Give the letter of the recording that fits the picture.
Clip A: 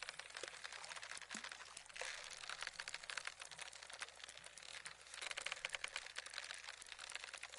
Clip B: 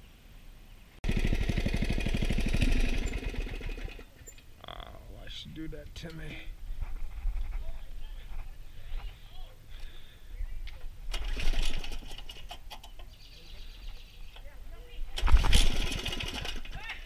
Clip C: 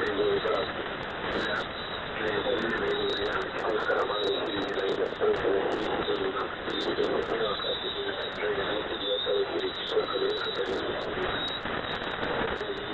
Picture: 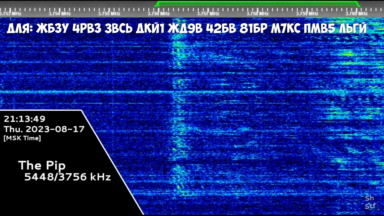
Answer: C